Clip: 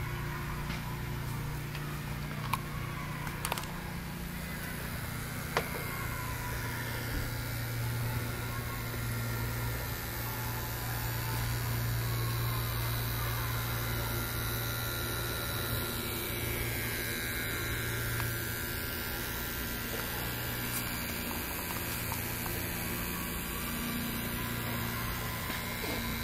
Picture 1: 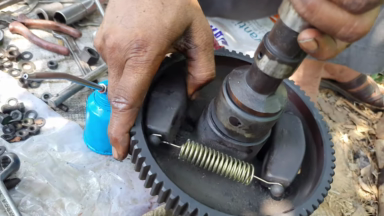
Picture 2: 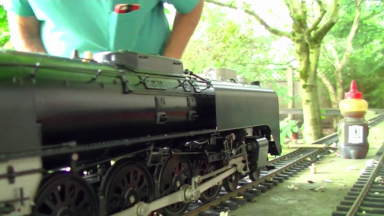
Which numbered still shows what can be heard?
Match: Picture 2